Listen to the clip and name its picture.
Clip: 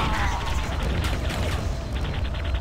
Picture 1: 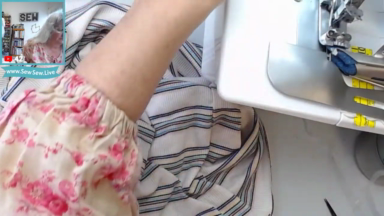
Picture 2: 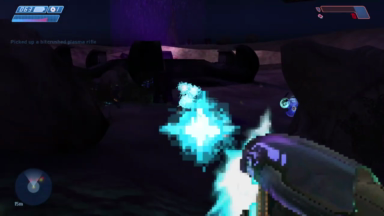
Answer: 2